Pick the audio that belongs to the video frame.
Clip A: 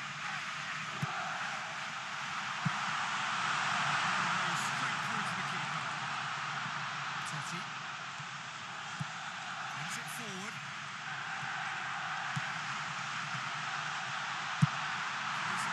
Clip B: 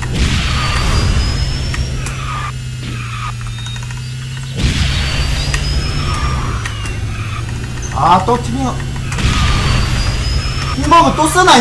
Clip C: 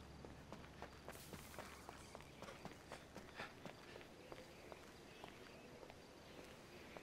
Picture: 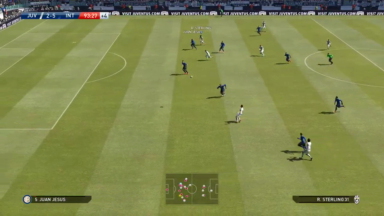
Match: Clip A